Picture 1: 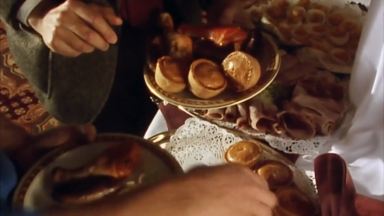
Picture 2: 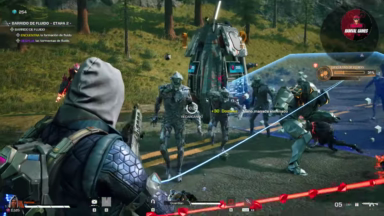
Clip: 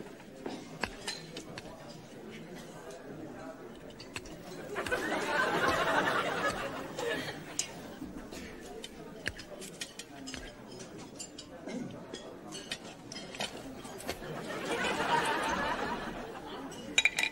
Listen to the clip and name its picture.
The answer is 1